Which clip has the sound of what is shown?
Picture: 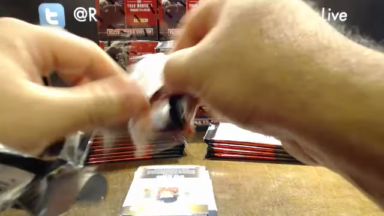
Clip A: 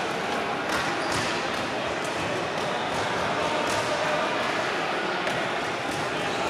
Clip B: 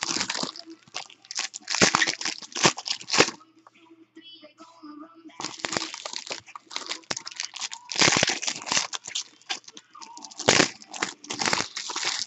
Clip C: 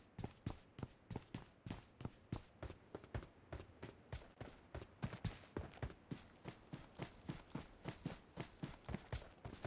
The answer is B